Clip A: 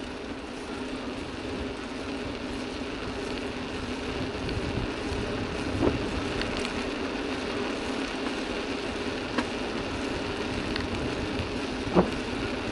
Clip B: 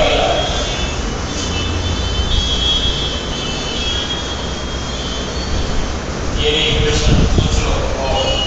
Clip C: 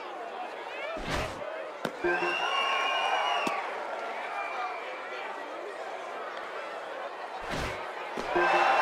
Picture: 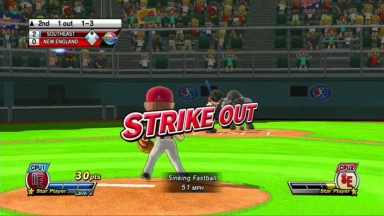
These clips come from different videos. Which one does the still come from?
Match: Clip C